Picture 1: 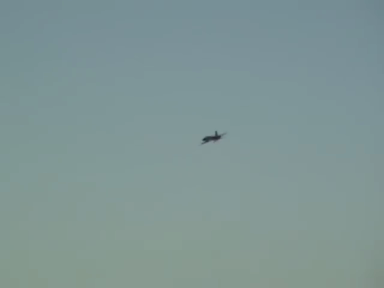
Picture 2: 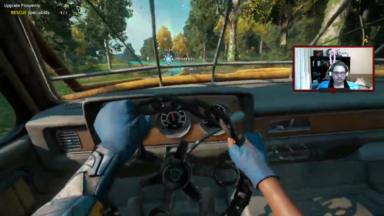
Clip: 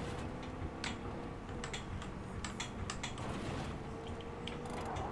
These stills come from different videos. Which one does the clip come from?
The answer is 2